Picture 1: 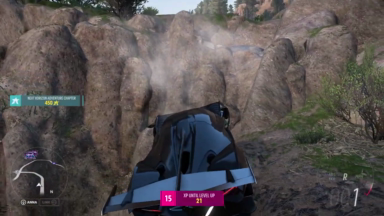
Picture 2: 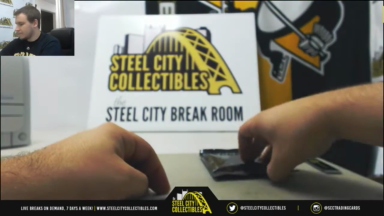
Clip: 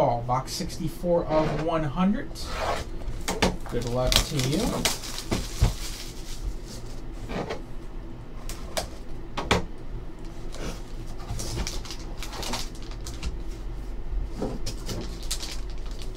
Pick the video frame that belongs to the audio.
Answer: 2